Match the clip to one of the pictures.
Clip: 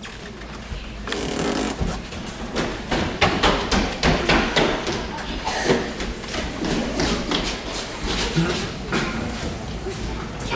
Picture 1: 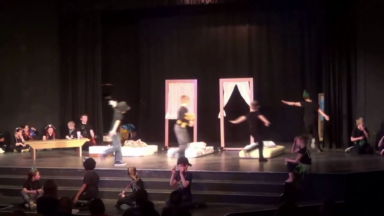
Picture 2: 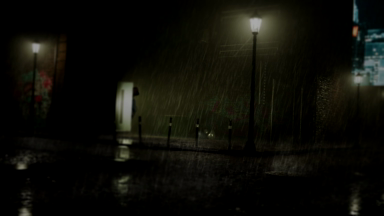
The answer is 1